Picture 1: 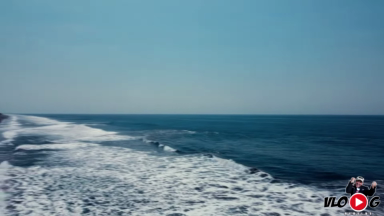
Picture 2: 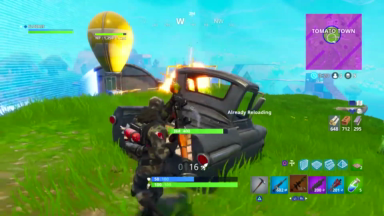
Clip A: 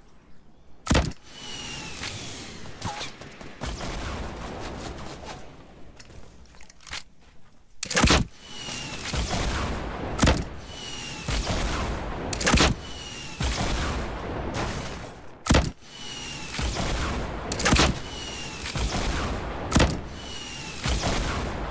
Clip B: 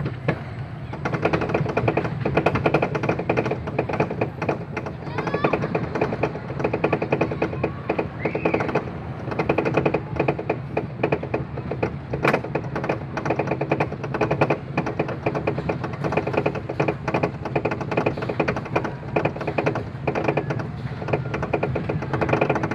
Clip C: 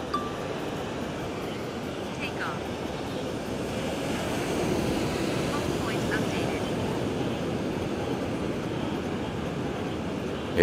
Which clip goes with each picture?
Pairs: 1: C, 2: A